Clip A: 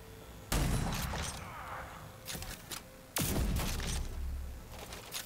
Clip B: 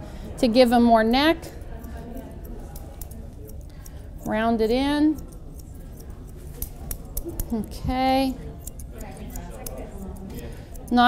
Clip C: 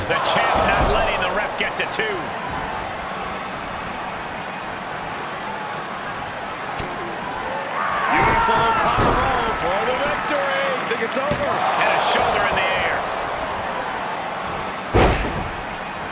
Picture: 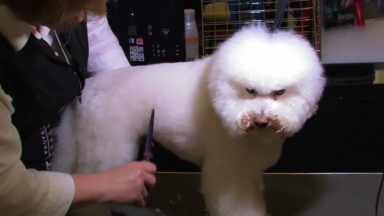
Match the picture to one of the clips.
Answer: B